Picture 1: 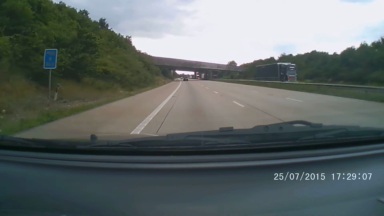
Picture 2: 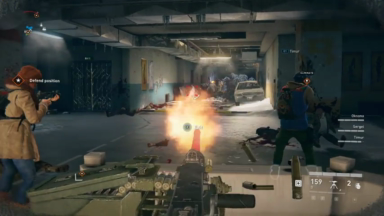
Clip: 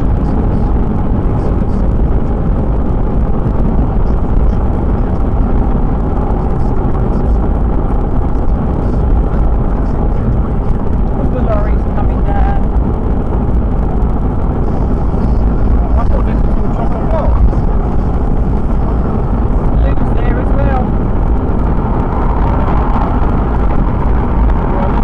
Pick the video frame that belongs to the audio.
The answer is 1